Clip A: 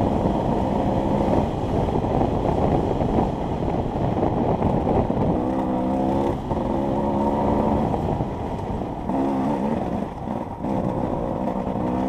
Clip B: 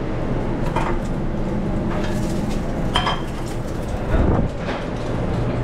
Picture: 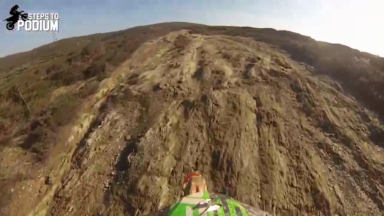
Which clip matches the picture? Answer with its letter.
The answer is A